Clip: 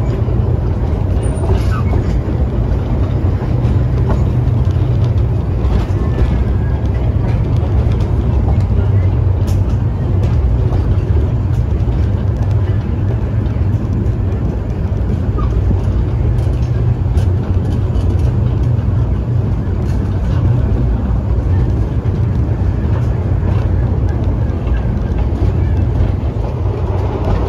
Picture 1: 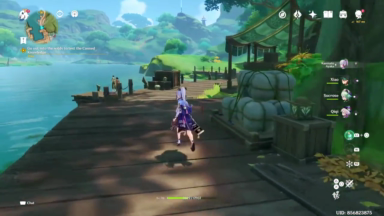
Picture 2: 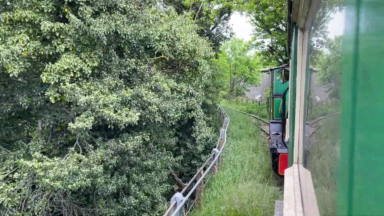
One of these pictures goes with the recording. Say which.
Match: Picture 2